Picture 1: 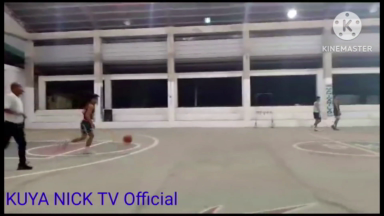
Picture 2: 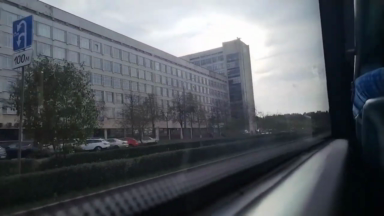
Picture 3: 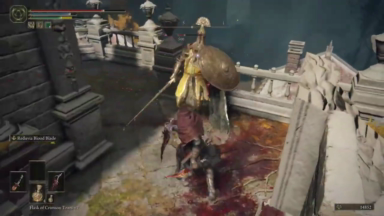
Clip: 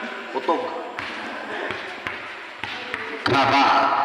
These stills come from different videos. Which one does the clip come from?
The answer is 1